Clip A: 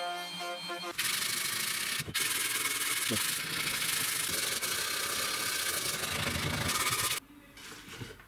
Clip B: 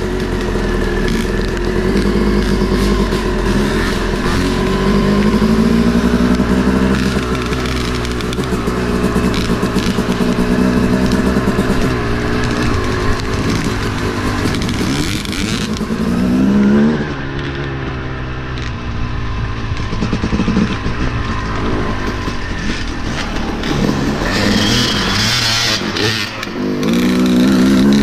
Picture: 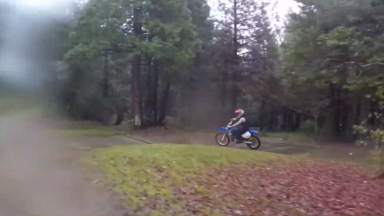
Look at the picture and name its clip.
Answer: B